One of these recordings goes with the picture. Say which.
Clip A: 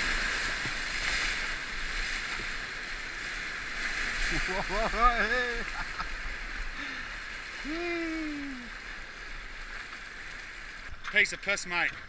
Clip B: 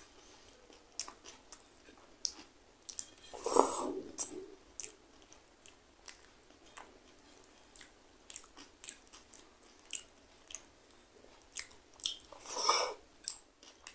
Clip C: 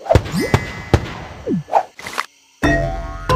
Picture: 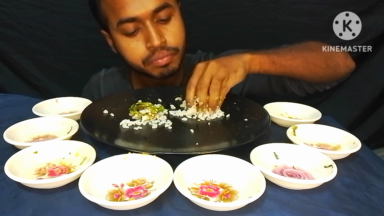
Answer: B